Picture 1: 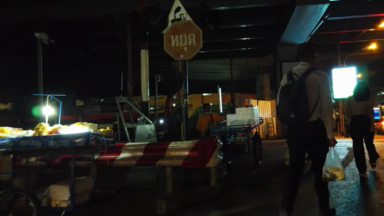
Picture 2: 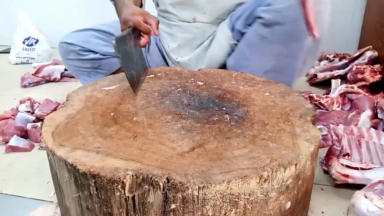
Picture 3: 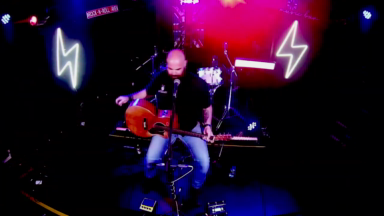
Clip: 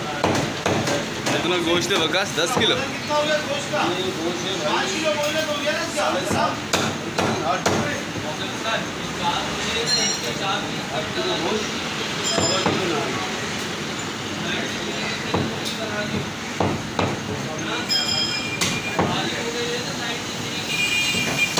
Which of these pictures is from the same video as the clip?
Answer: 2